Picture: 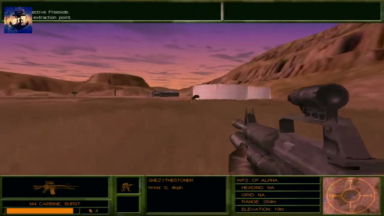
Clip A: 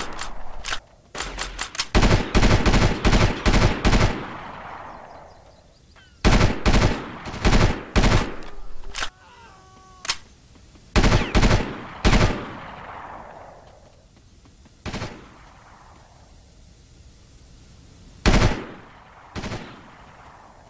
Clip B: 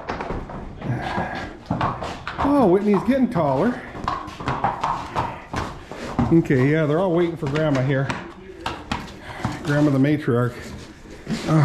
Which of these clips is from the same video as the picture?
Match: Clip A